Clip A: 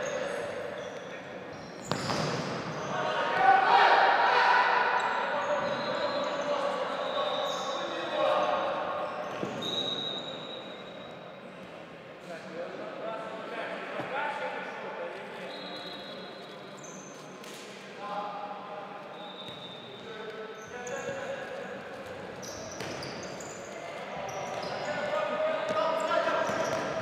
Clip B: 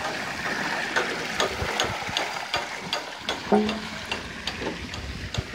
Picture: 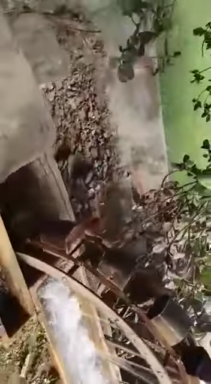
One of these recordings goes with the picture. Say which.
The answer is B